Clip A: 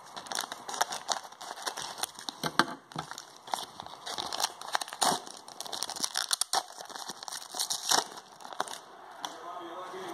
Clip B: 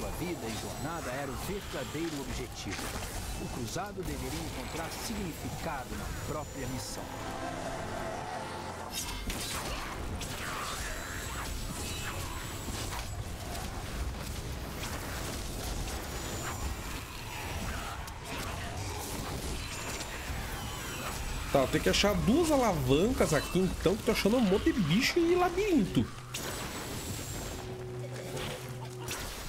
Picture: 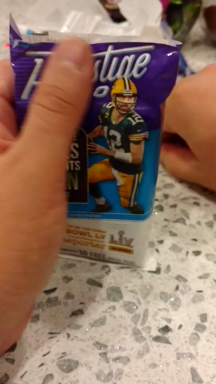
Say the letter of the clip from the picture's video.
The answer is A